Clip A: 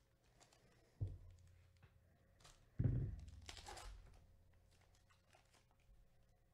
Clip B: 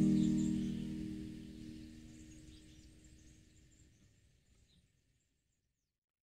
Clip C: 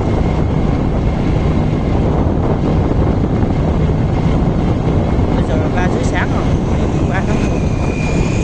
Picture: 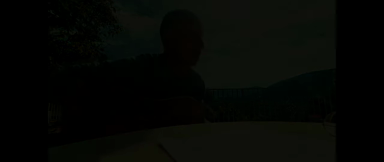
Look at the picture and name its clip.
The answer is B